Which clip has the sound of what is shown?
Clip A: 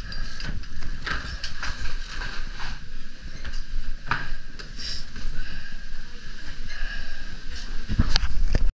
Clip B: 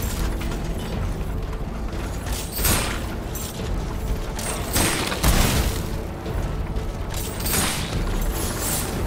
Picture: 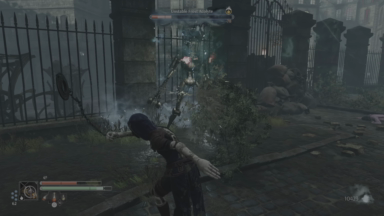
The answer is B